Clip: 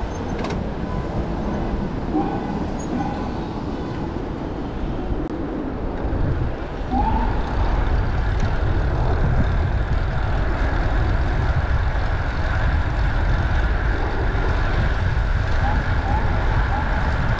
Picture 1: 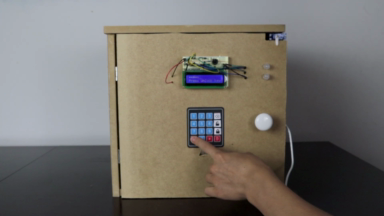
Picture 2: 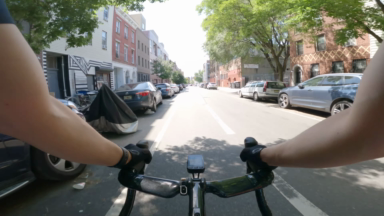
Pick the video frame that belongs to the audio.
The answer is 2